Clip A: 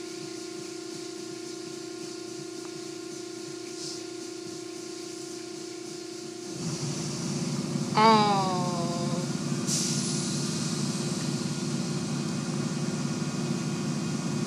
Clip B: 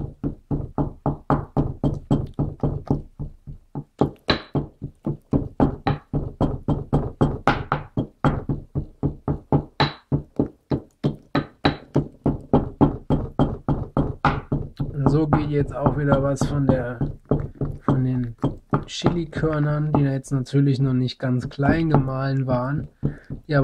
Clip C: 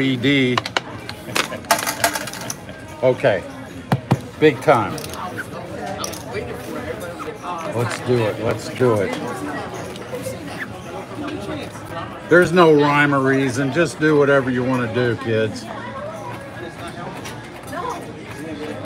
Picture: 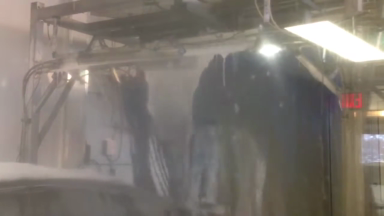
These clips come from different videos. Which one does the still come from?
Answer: A